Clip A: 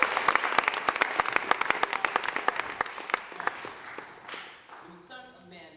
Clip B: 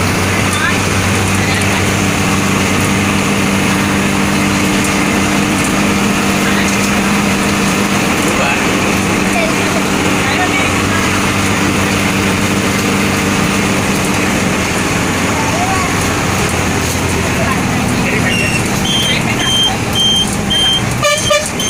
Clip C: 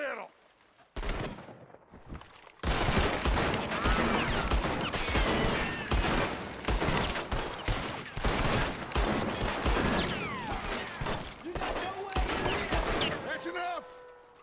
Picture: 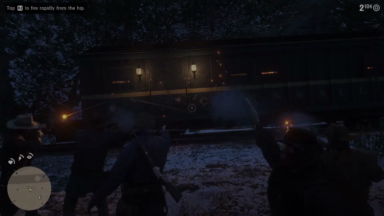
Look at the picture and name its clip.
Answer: C